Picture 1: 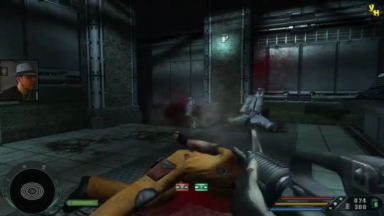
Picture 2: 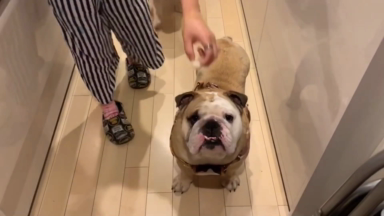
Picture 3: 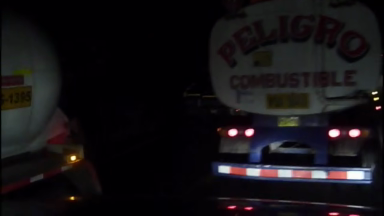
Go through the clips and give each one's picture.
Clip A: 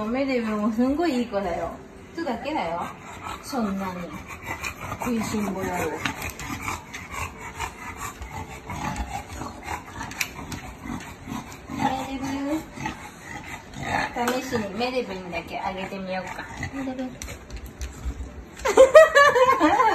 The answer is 2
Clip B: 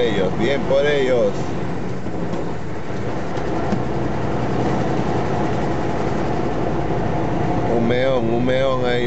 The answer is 3